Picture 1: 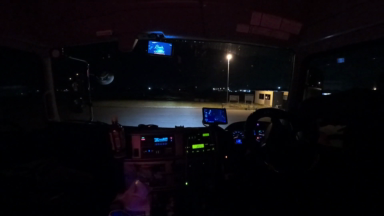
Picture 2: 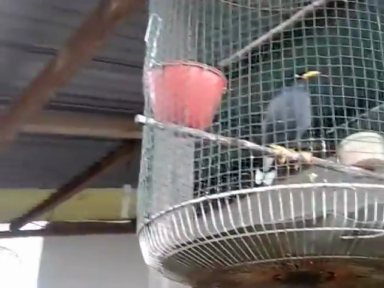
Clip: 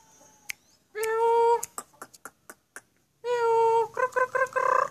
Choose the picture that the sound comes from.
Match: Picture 2